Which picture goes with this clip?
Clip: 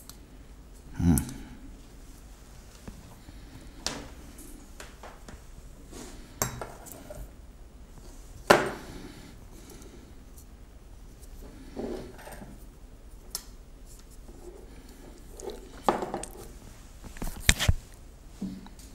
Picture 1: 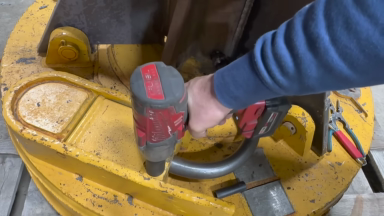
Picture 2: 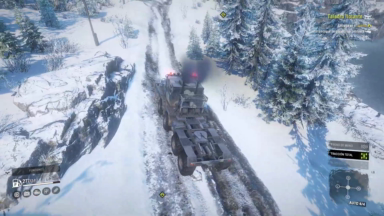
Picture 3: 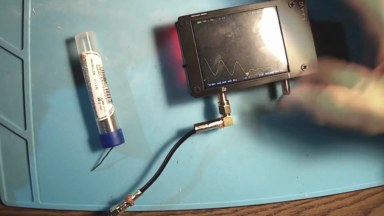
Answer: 3